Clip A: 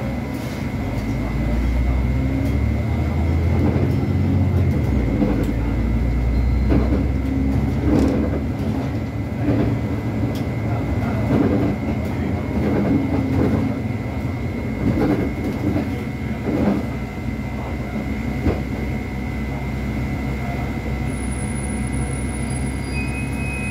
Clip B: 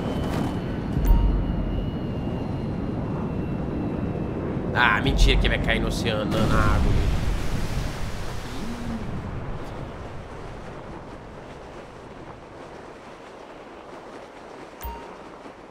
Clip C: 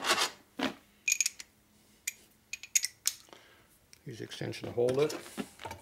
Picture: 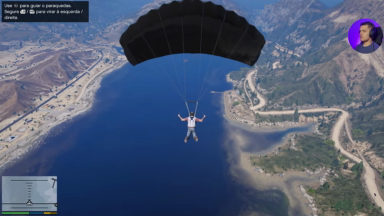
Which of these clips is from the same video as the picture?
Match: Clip B